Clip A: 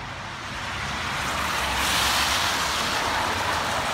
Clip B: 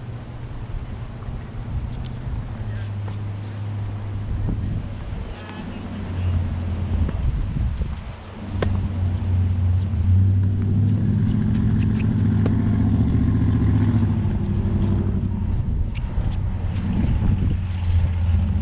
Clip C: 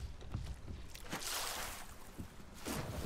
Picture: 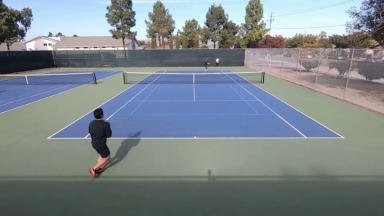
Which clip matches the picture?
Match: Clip B